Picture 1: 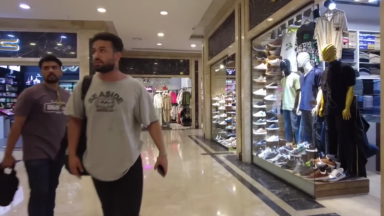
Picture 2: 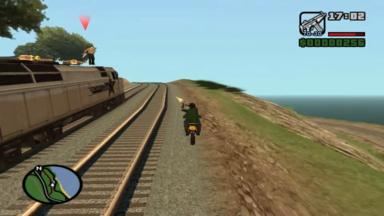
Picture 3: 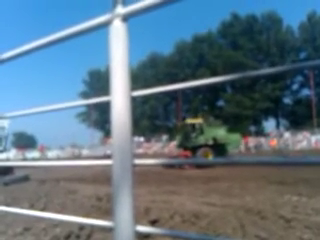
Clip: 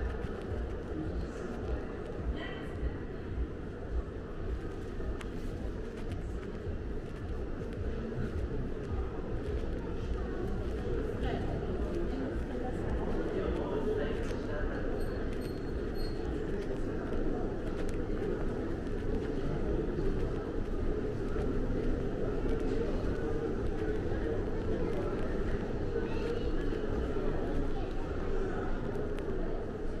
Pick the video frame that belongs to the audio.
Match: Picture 1